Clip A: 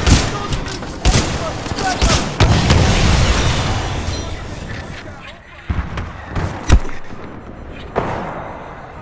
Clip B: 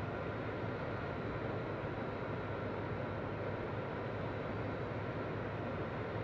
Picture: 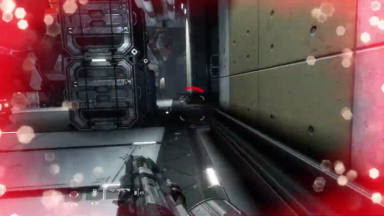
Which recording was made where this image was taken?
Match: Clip A